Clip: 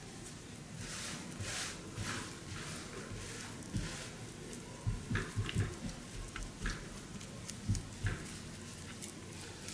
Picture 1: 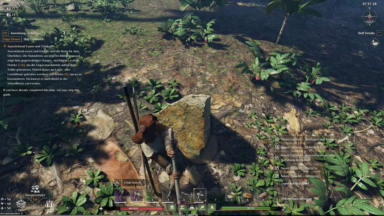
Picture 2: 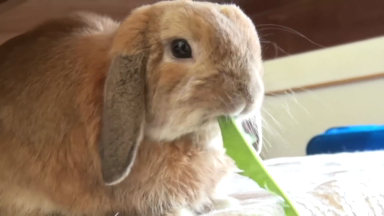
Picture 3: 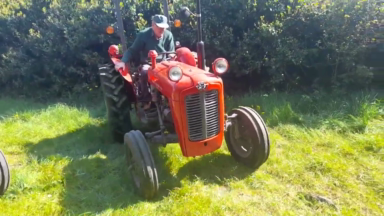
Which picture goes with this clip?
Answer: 2